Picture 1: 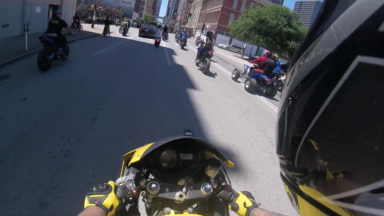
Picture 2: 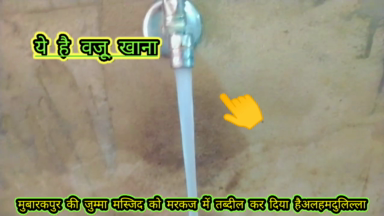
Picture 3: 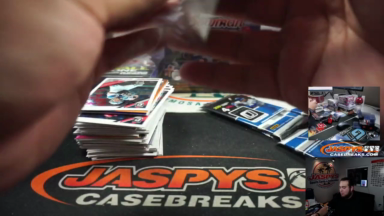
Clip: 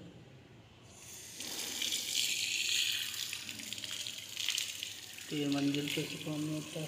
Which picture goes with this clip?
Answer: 2